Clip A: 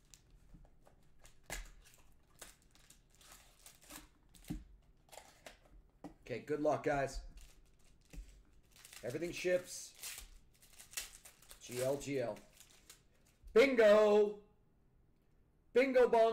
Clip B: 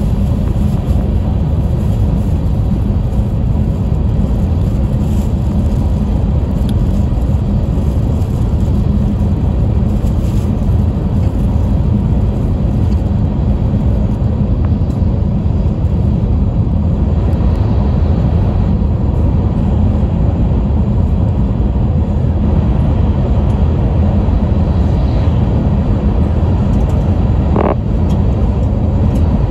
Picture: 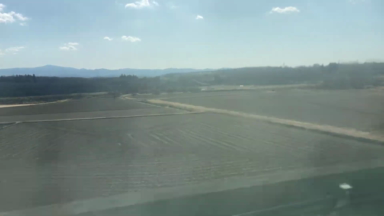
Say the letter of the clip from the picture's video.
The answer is B